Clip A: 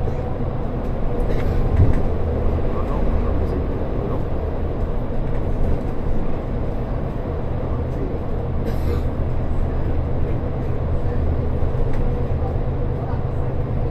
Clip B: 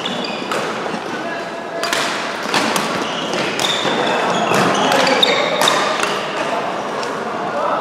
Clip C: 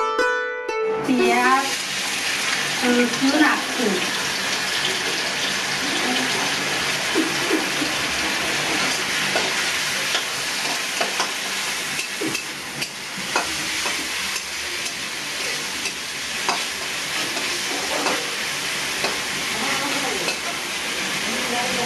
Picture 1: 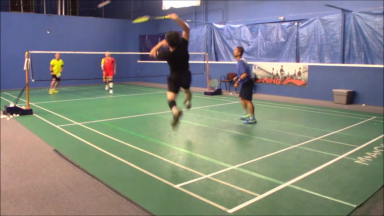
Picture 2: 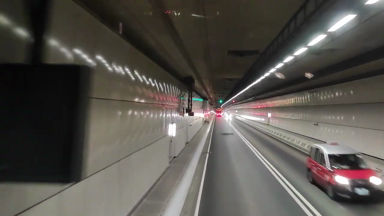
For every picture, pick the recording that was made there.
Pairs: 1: B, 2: A